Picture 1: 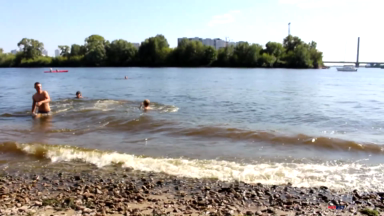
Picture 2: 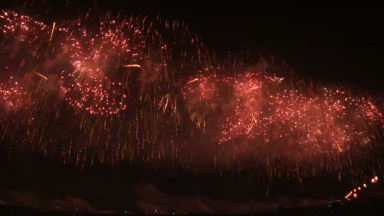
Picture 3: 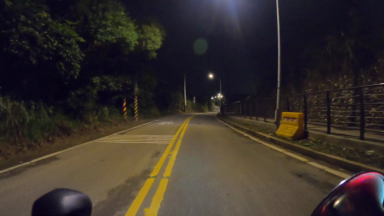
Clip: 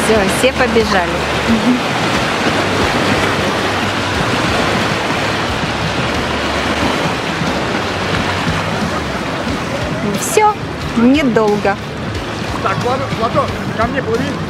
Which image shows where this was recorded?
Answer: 1